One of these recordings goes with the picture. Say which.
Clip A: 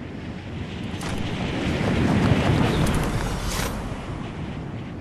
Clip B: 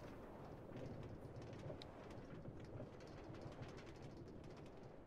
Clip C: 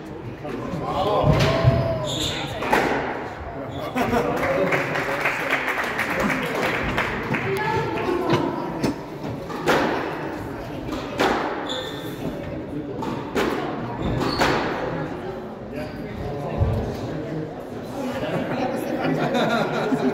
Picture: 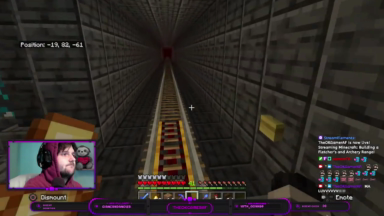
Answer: B